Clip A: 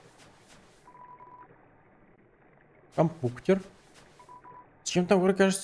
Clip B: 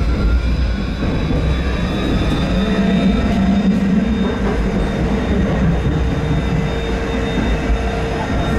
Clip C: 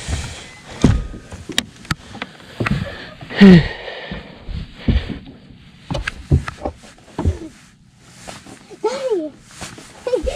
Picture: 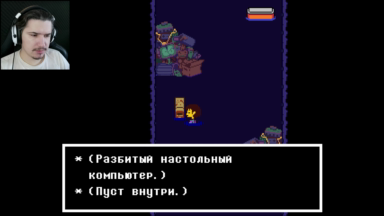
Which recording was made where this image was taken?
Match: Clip A